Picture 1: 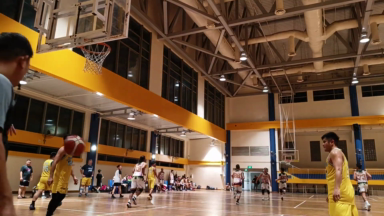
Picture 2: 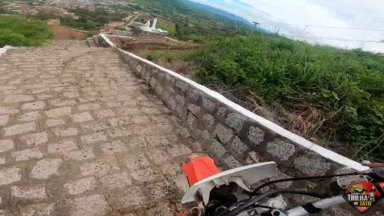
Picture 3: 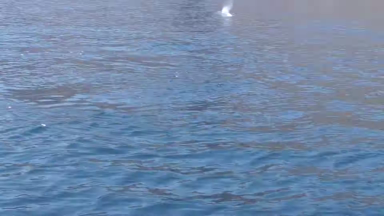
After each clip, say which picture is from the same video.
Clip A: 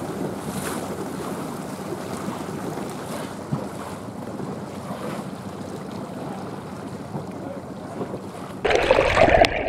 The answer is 3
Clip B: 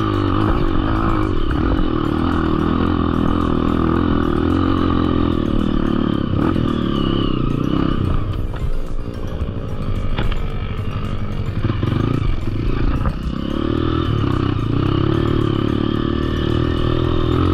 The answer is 2